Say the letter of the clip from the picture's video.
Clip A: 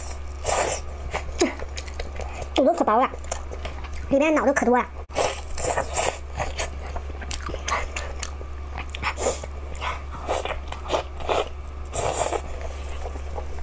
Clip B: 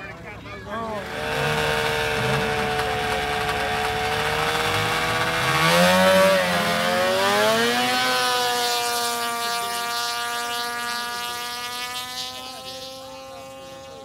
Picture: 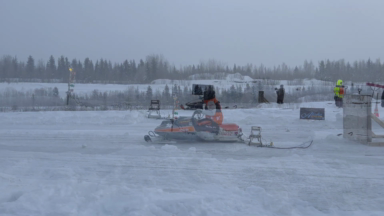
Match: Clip B